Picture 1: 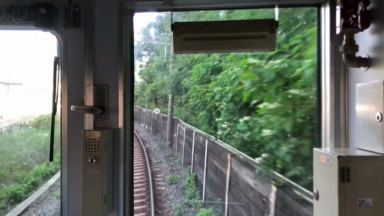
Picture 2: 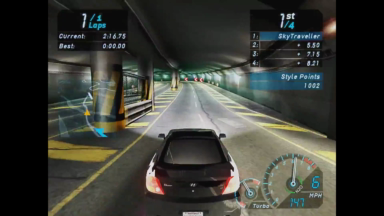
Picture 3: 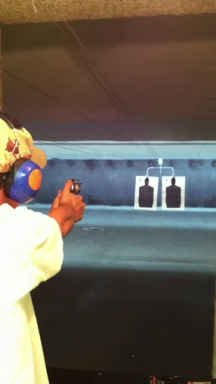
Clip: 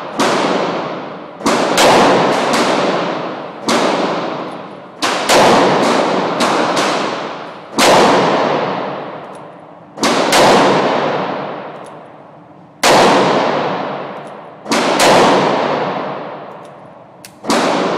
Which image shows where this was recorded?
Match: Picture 3